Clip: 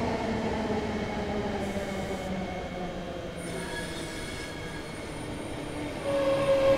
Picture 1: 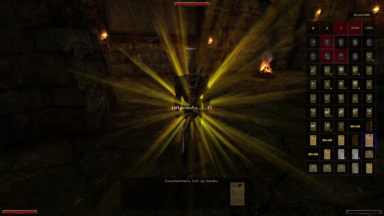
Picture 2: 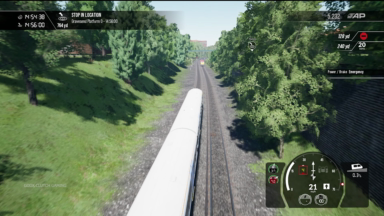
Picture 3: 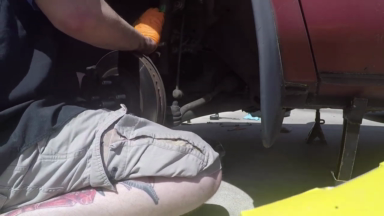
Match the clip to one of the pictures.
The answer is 2